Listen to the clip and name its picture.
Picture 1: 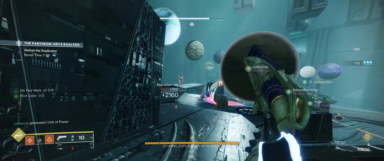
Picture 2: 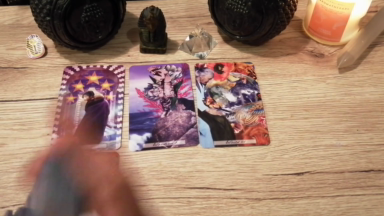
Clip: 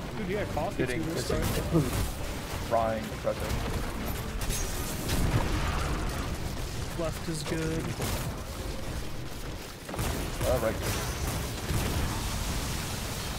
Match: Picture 1